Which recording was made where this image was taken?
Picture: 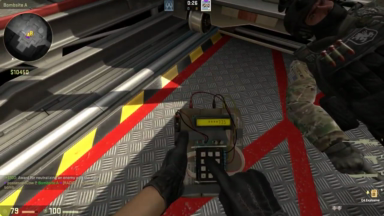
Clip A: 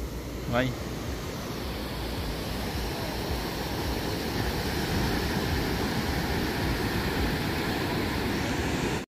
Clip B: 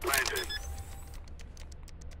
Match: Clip B